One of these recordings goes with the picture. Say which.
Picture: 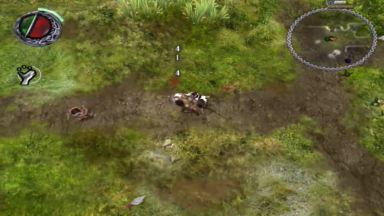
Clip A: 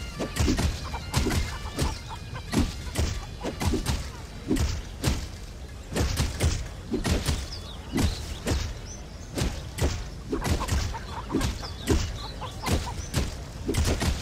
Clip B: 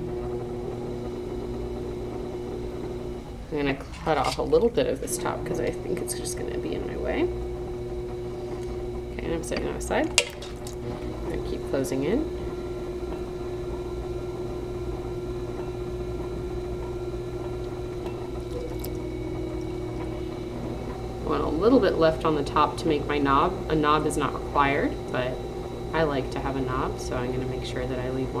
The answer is A